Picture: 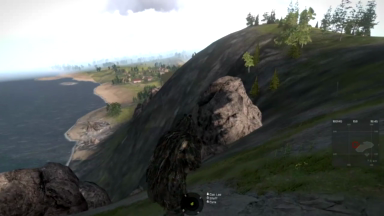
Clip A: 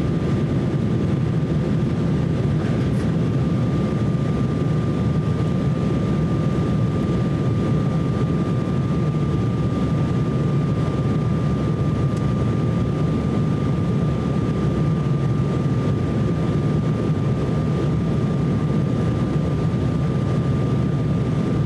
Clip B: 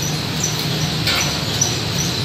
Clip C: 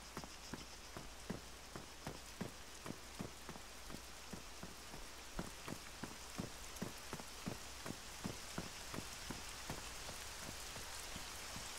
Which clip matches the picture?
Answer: C